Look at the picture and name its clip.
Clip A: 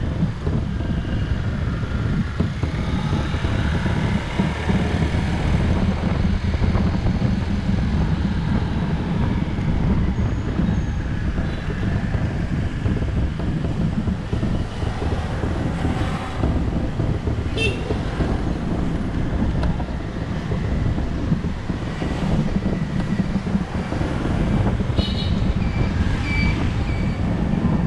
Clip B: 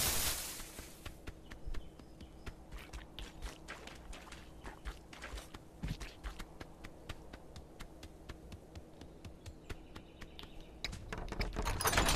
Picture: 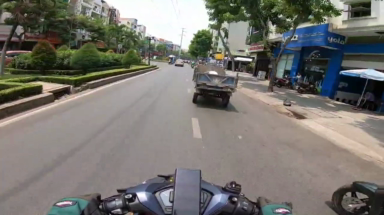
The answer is A